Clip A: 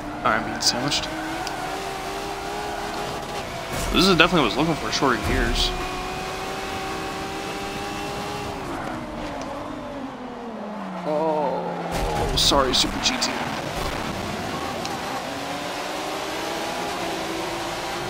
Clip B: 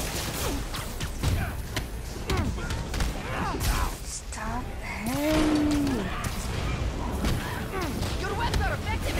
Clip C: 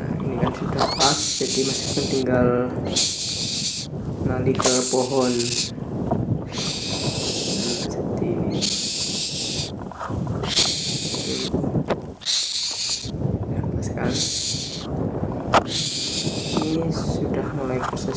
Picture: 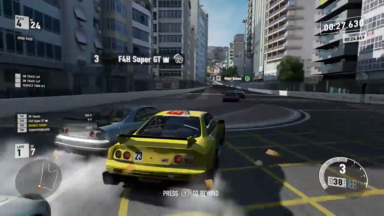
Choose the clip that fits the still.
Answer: A